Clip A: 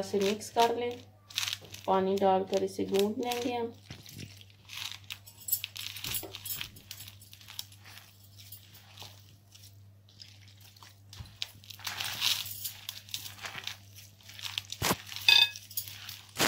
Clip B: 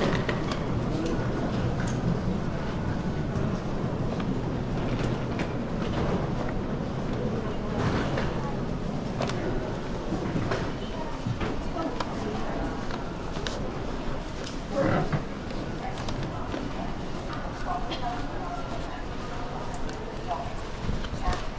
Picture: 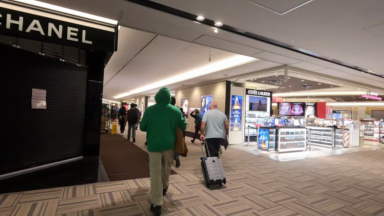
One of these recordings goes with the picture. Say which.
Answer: B